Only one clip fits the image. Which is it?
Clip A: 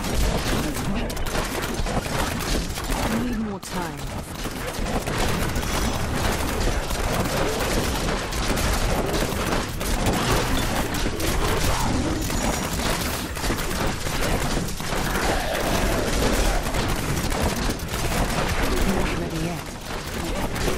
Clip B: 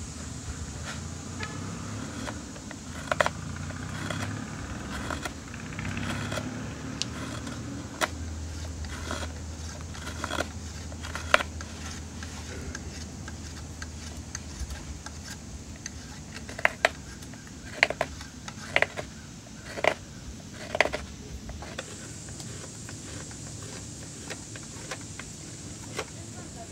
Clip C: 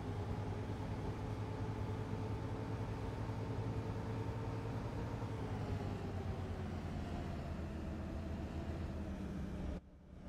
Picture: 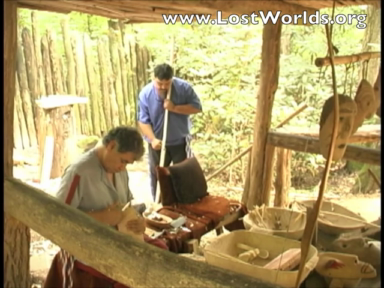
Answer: B